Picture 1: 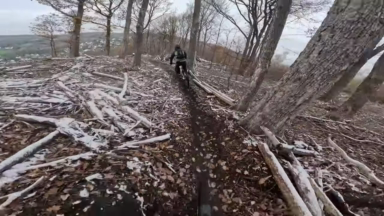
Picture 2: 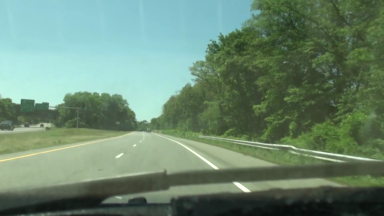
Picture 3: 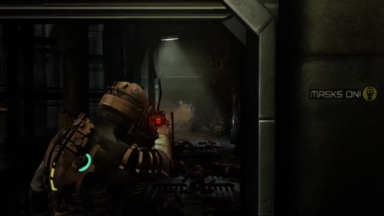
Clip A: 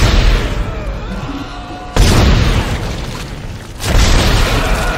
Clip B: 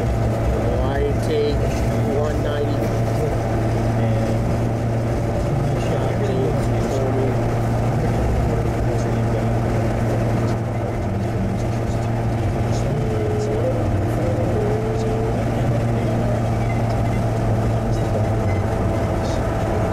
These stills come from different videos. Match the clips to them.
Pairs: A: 3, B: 2